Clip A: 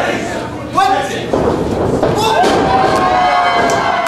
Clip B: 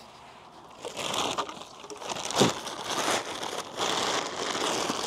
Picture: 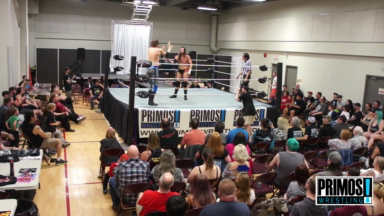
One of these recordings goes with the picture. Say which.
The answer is A